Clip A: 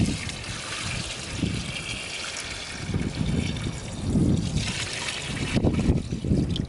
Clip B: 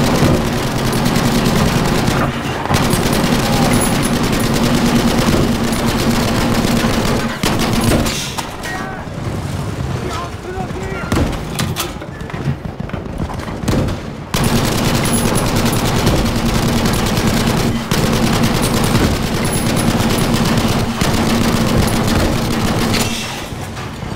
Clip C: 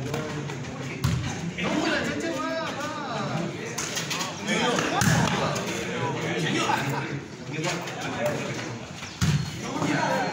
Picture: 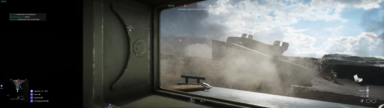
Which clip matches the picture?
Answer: B